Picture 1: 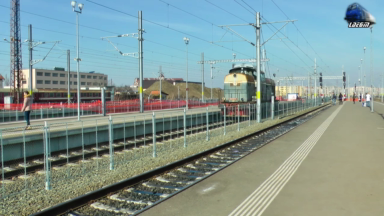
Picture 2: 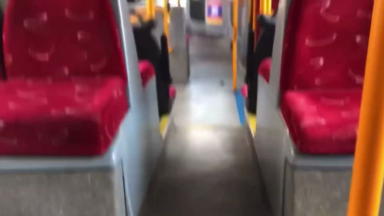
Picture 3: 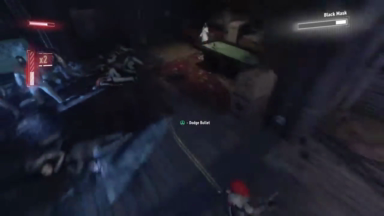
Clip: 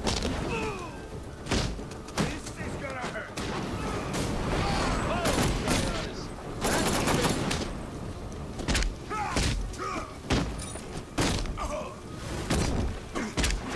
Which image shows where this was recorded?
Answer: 3